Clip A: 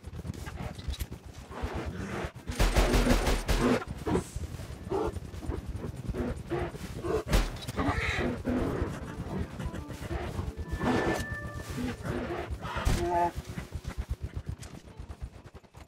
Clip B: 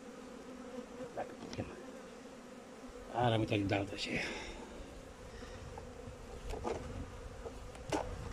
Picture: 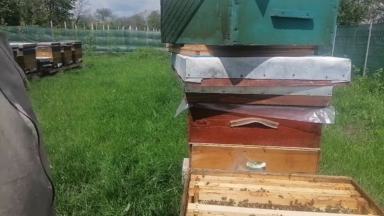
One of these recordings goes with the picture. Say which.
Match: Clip B